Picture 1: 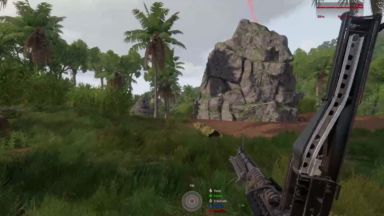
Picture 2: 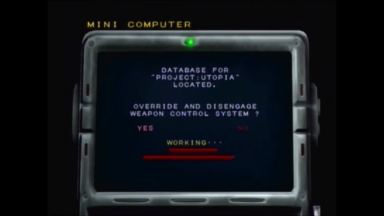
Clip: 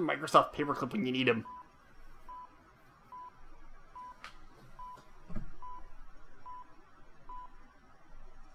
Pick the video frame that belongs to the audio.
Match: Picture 2